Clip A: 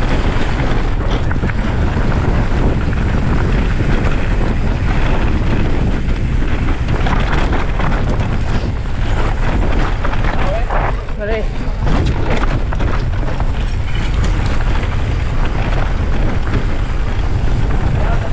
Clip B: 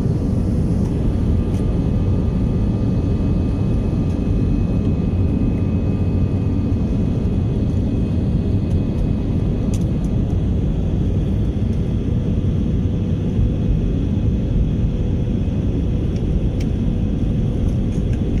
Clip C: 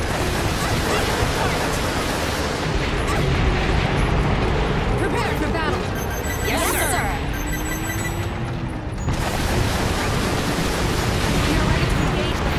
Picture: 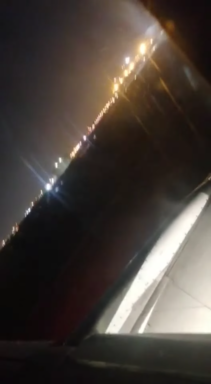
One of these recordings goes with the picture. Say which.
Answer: B